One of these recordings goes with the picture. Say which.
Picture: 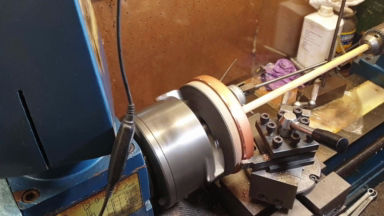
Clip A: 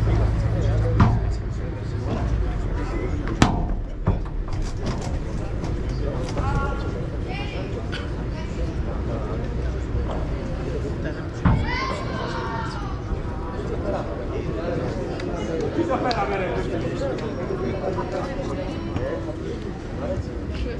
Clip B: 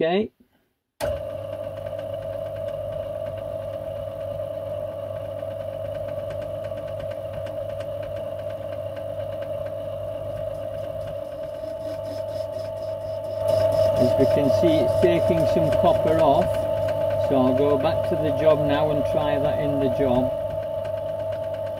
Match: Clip B